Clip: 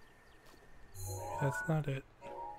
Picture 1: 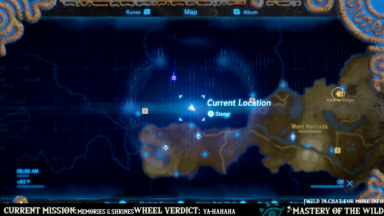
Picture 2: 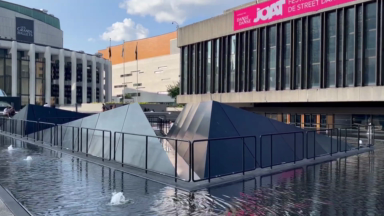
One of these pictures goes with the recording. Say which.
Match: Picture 1